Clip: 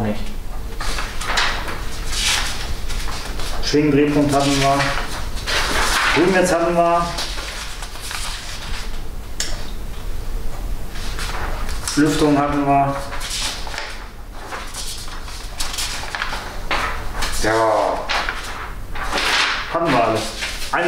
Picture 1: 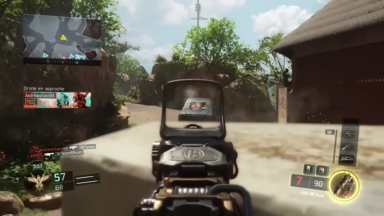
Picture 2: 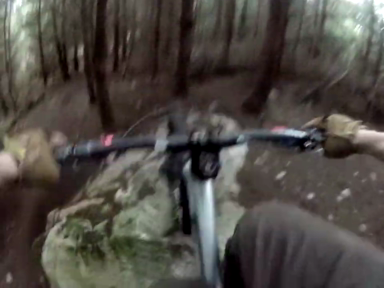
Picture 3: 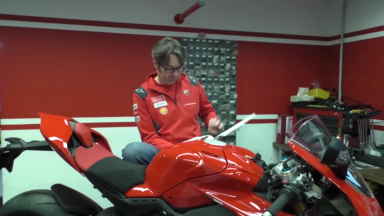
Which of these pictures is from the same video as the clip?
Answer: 3